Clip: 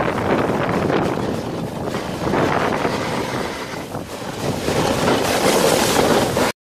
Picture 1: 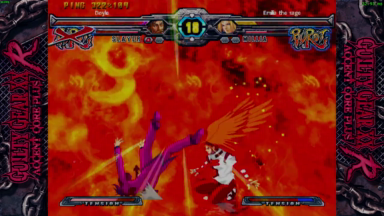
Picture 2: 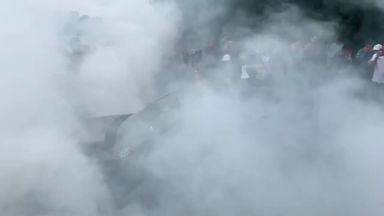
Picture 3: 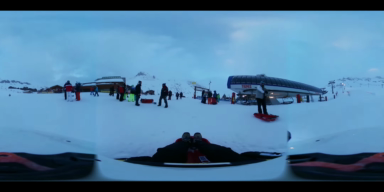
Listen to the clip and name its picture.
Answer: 3